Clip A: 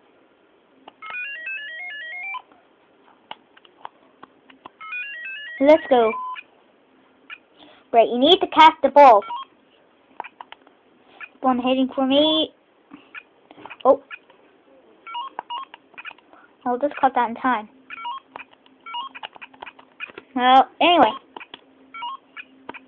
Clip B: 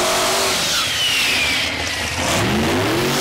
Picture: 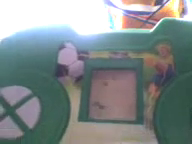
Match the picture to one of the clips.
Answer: A